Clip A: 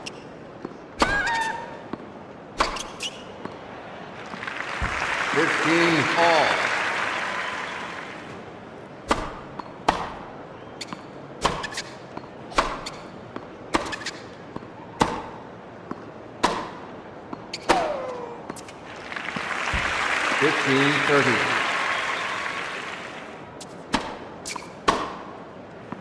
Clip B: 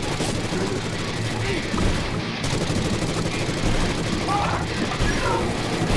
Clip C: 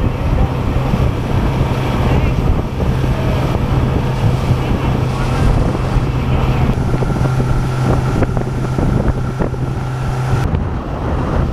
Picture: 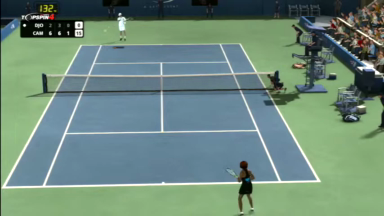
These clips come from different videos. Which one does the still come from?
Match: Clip A